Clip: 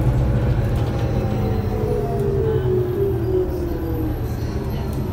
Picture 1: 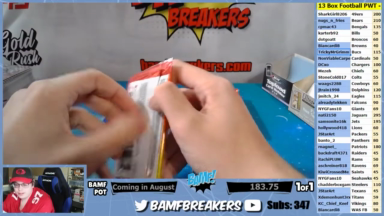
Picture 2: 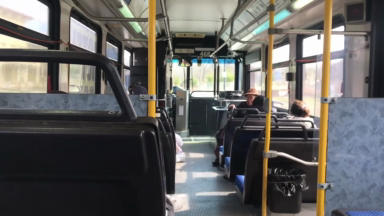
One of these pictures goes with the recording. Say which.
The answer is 2